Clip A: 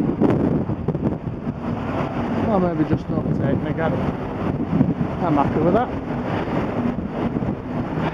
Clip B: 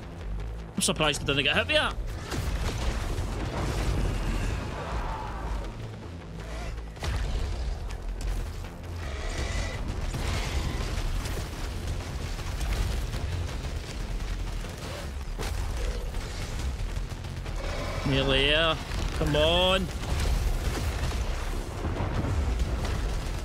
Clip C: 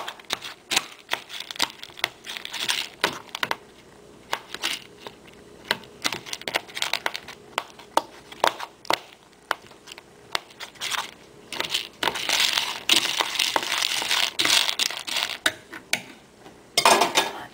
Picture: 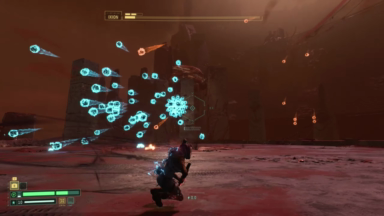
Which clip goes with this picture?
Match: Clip B